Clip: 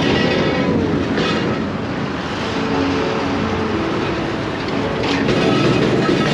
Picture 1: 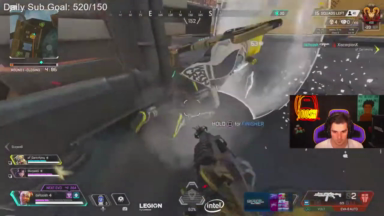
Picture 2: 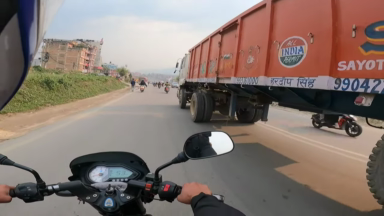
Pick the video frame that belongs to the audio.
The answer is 2